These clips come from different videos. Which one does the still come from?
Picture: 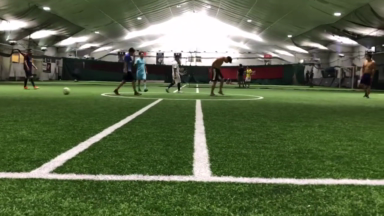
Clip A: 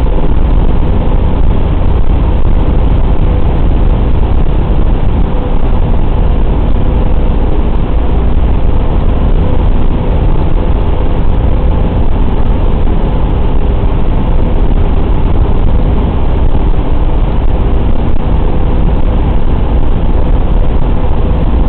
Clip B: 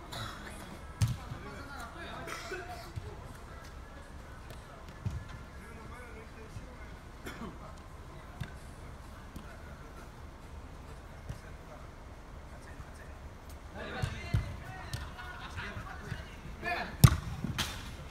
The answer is B